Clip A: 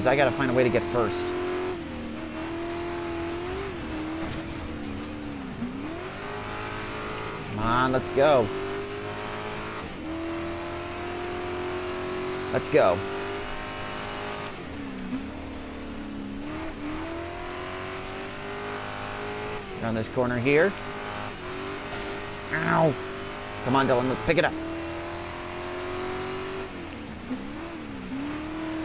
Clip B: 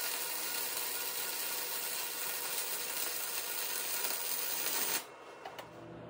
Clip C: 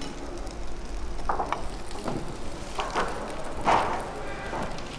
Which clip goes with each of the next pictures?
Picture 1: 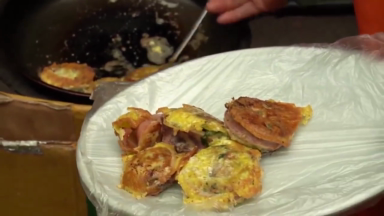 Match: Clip C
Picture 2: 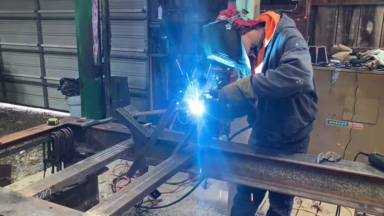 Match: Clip B